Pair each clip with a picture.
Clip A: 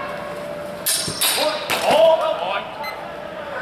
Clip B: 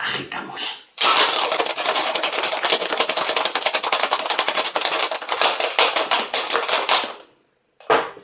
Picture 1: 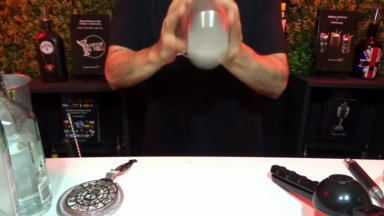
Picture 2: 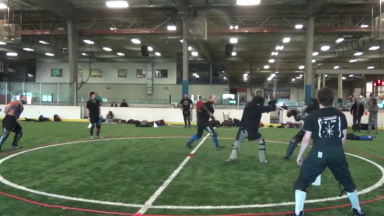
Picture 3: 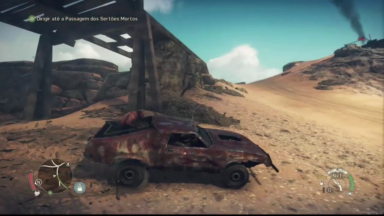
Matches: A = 2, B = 1